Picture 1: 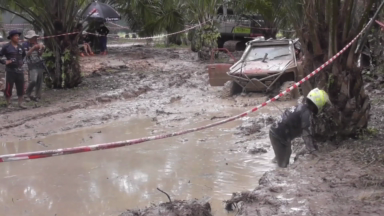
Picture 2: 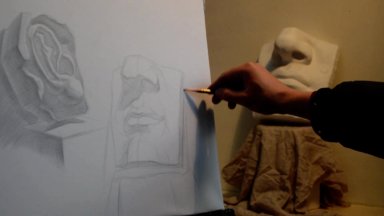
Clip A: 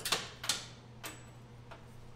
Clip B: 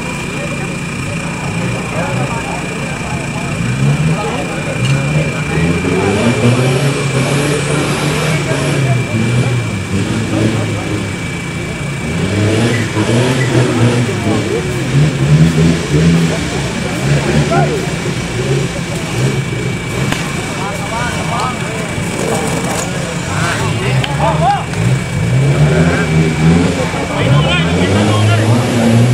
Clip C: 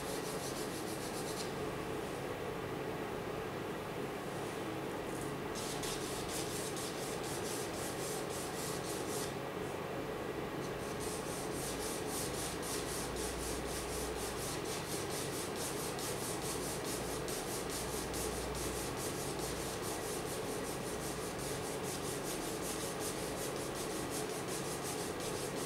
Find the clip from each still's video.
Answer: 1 B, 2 C